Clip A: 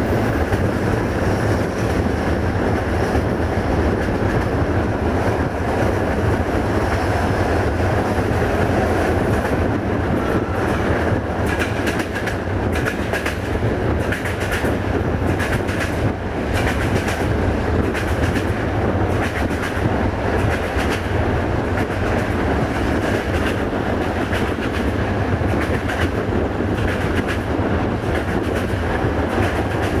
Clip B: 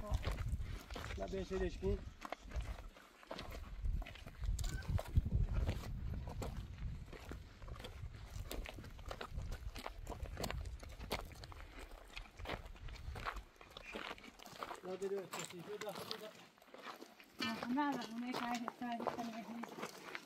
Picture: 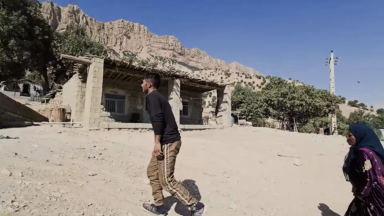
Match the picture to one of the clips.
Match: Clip B